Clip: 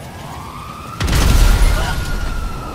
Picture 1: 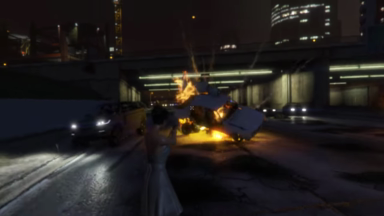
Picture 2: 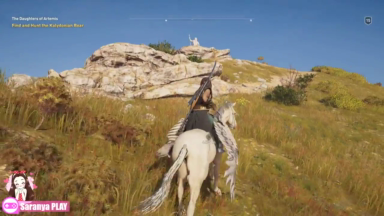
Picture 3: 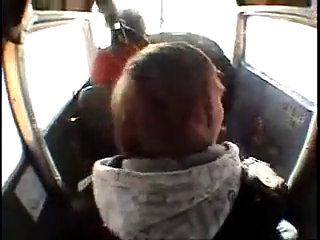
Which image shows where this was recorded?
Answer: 1